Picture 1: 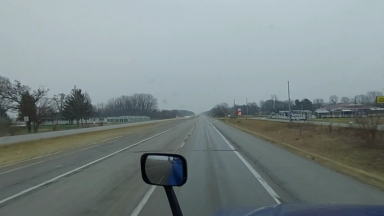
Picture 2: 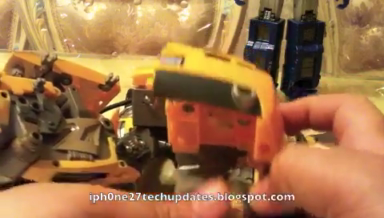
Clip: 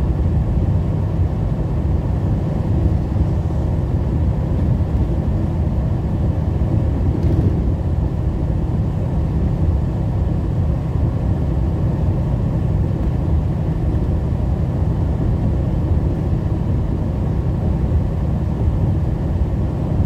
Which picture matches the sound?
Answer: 1